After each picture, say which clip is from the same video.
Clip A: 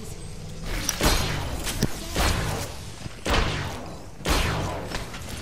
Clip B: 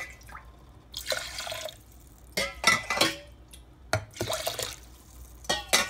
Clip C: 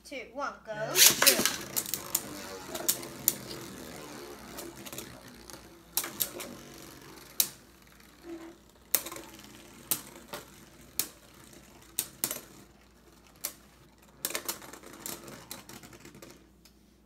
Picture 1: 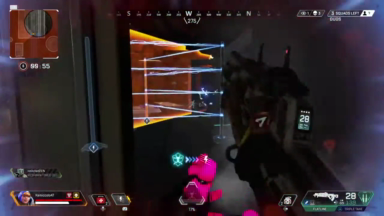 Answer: A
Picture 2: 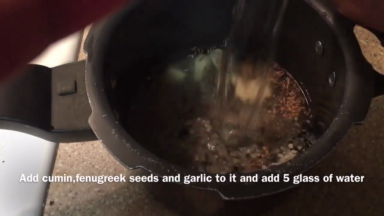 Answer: B